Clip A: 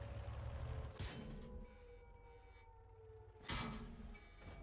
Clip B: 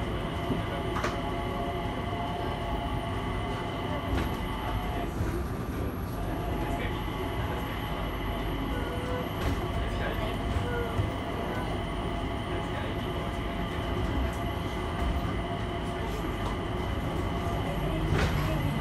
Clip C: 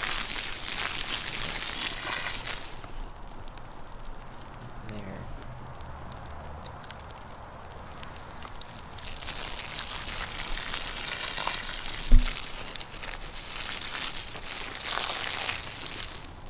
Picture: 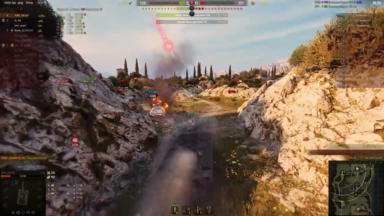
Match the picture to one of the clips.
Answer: A